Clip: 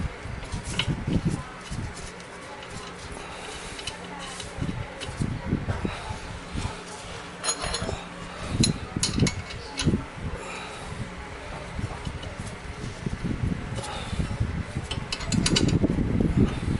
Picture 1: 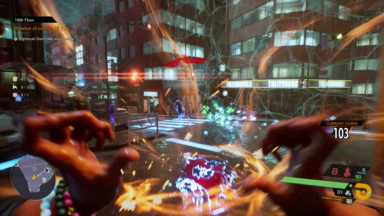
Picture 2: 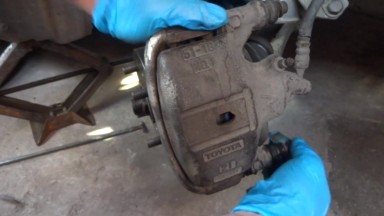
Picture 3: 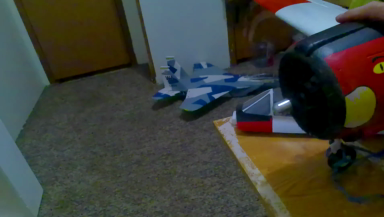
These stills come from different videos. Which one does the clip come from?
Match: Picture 2